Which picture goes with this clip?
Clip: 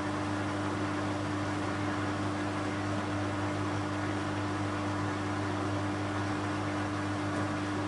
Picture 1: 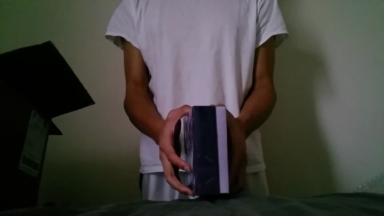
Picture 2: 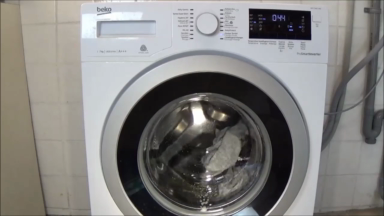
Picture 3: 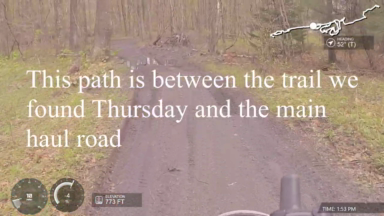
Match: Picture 2